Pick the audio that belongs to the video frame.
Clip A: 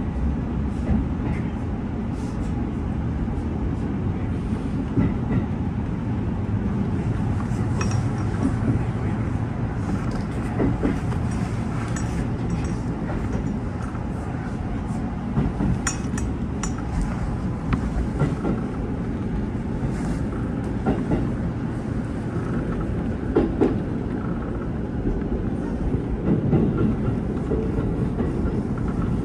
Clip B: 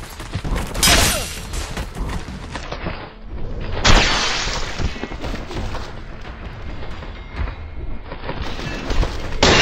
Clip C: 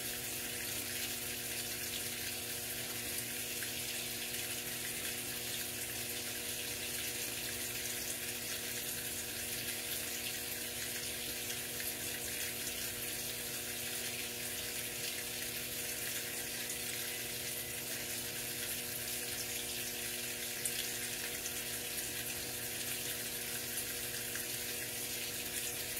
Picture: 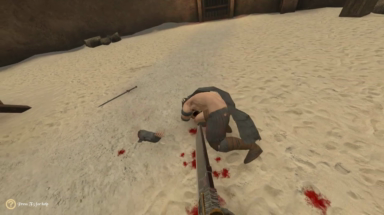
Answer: B